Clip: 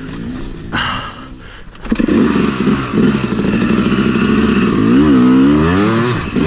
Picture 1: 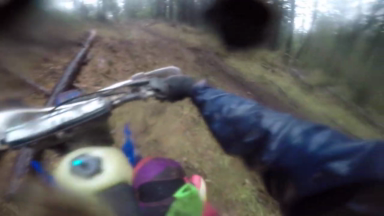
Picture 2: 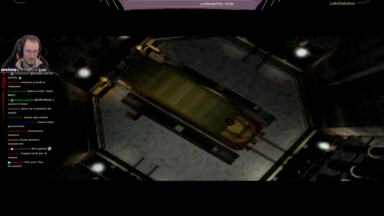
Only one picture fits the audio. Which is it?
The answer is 1